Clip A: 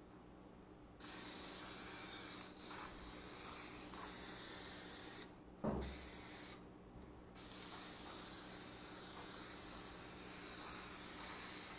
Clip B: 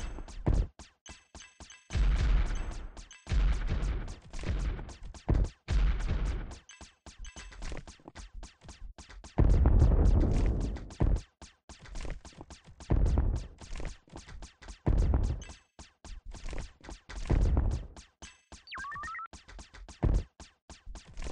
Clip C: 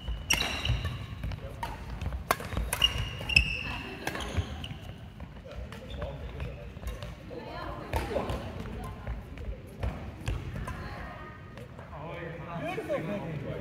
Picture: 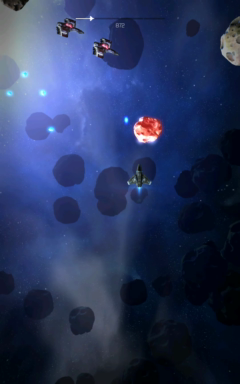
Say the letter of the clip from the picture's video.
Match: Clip B